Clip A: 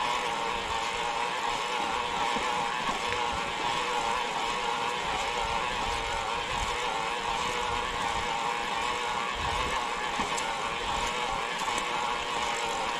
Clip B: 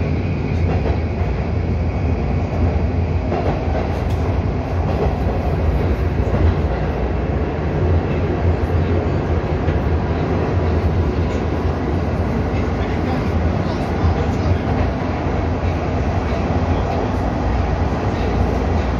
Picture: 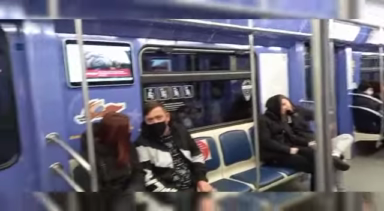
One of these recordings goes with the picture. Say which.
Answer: B